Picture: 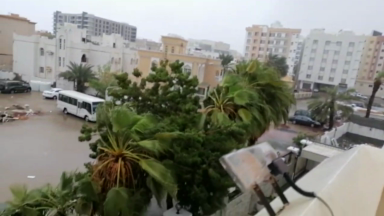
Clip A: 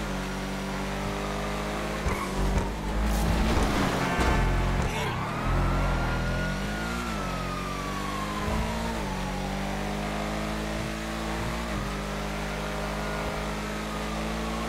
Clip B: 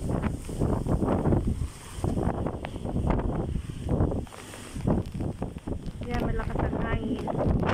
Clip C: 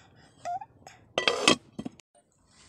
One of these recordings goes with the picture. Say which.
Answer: B